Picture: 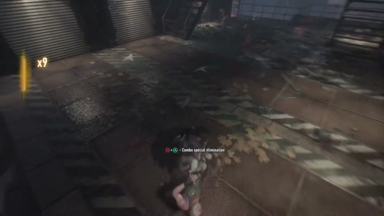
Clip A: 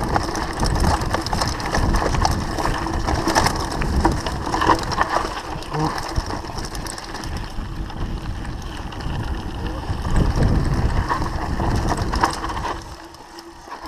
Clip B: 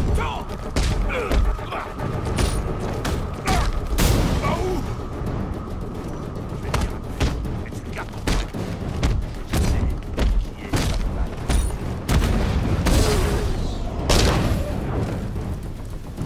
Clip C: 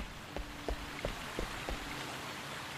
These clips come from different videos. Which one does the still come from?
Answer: B